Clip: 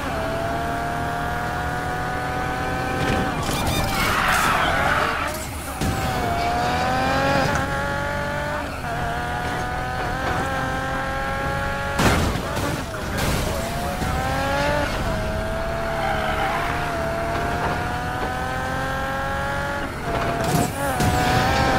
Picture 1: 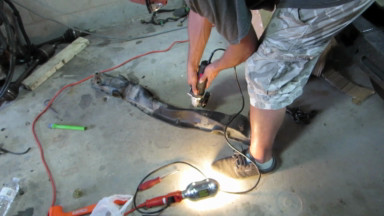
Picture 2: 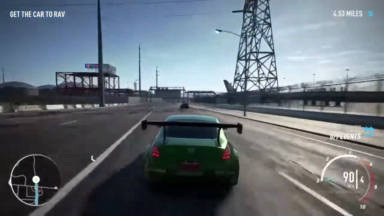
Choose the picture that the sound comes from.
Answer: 2